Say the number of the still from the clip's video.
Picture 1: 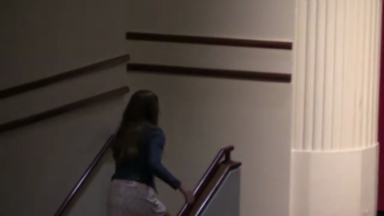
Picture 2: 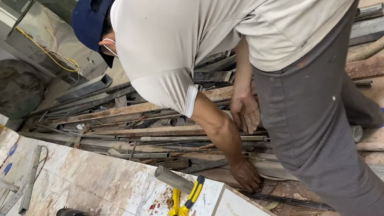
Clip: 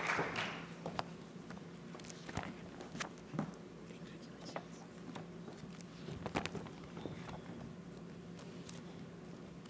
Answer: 1